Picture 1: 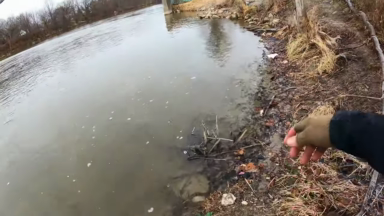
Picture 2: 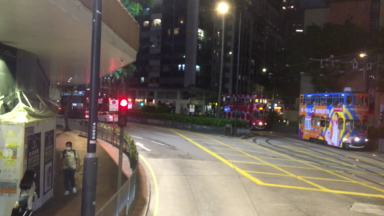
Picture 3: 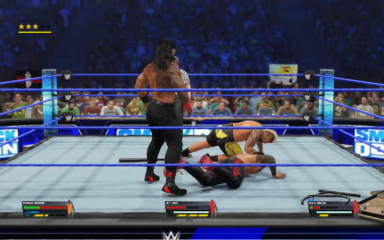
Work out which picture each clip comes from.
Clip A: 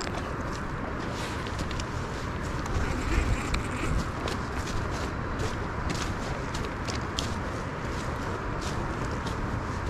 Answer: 1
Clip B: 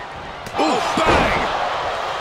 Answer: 3